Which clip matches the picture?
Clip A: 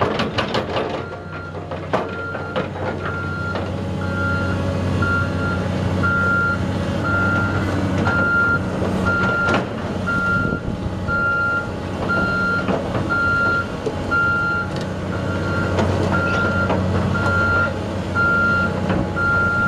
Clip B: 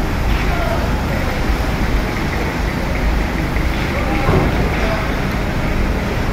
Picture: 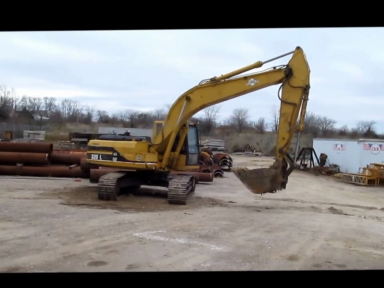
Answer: A